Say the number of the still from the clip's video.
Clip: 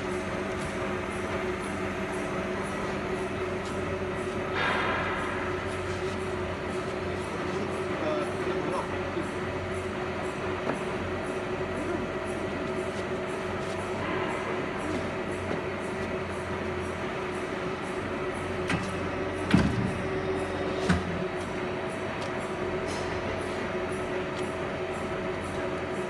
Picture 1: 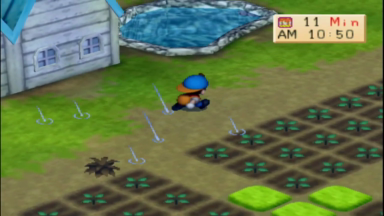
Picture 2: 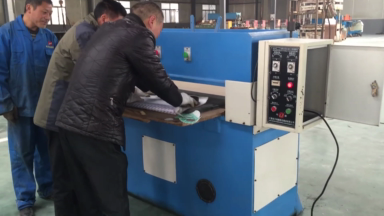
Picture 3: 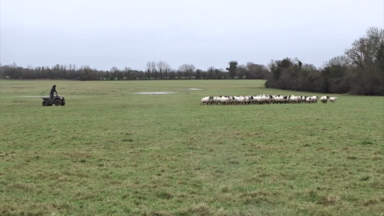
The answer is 2